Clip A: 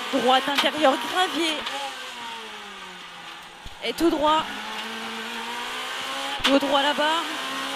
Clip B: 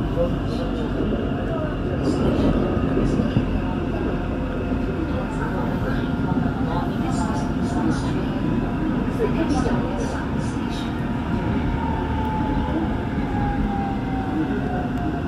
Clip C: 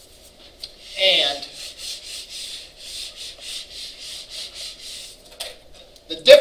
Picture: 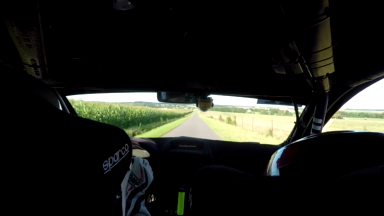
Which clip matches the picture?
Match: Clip A